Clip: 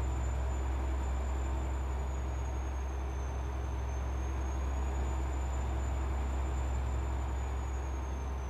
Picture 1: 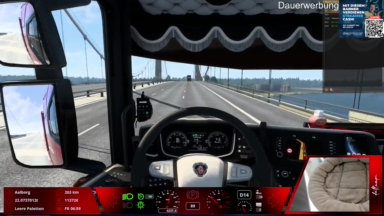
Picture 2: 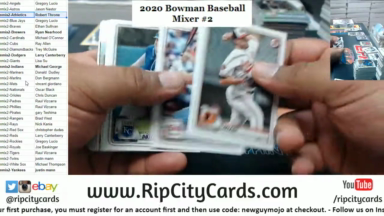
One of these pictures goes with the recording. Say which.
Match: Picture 1